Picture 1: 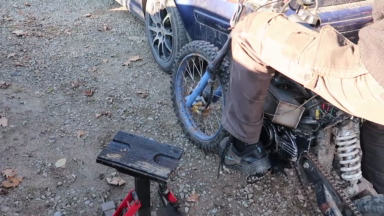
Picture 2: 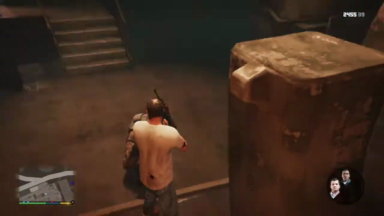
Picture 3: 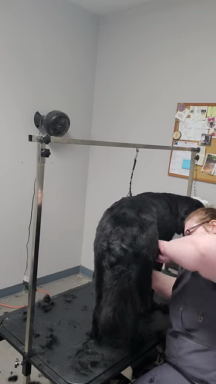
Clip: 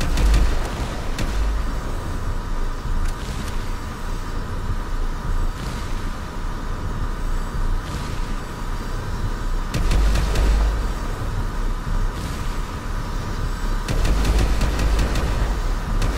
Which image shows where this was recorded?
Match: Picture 2